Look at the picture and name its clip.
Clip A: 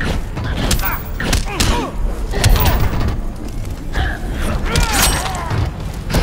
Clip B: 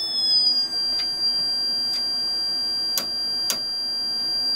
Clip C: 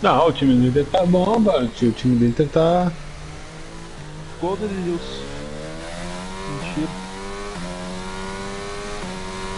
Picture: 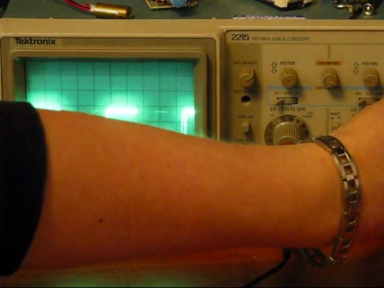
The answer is B